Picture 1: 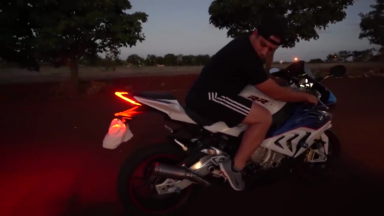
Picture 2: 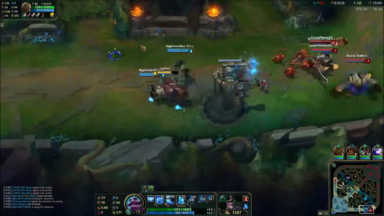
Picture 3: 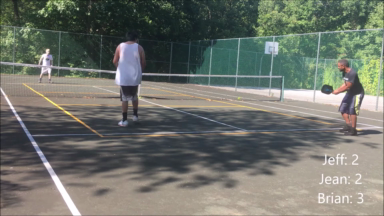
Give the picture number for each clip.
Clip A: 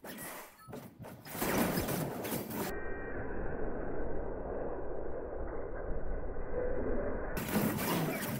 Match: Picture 2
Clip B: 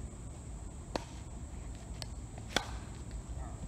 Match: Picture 3